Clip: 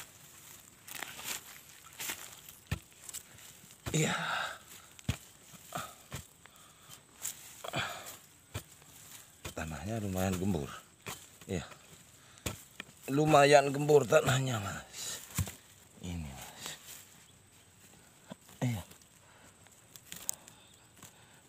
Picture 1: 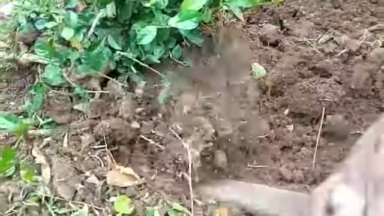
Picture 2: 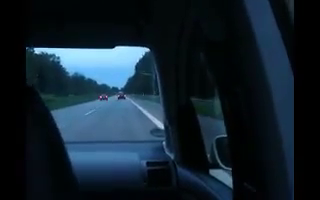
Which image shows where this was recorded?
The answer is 1